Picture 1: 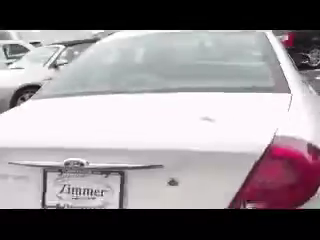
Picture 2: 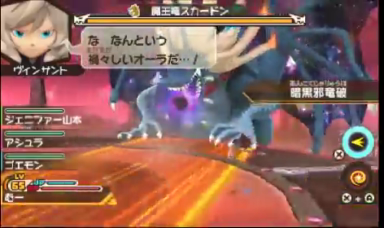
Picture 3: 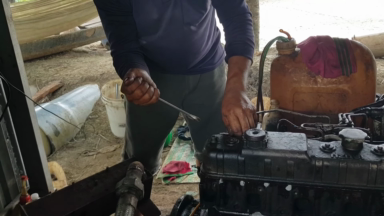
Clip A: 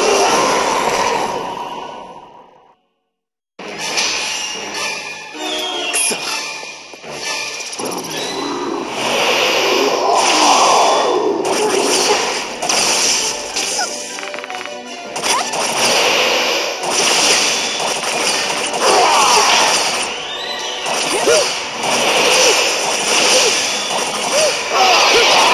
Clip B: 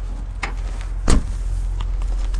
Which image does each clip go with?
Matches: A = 2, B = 1